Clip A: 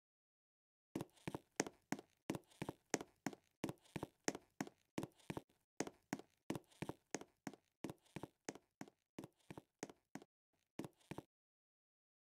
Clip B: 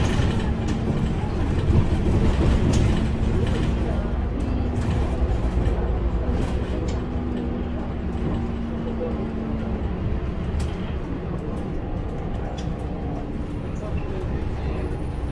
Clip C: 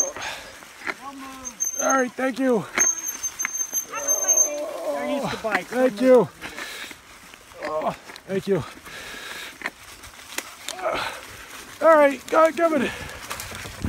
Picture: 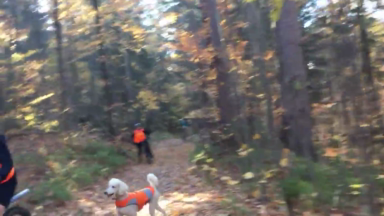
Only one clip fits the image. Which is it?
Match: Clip C